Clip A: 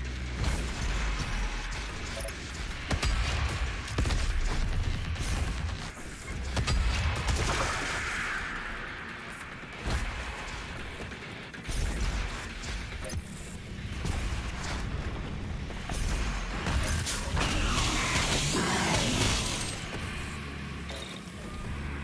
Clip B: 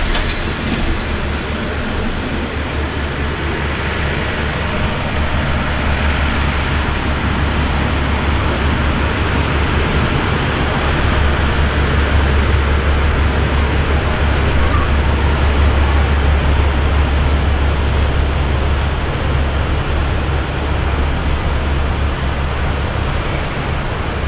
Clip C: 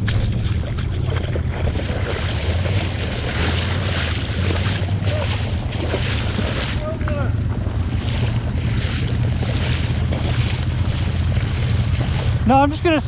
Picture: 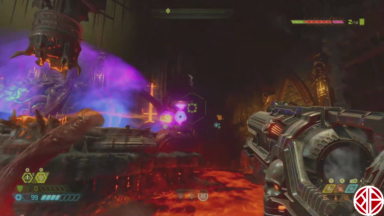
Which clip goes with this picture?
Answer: A